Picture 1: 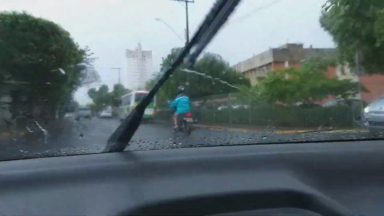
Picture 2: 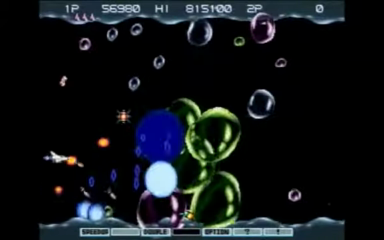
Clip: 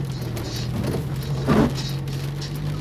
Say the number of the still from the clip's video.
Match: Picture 1